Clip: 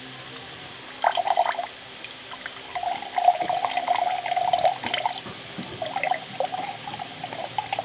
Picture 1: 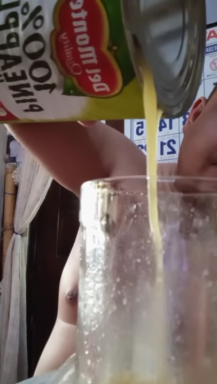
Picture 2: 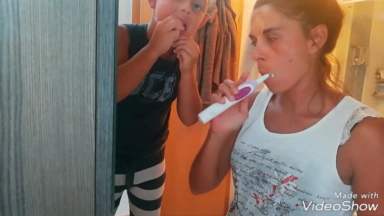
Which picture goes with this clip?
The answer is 1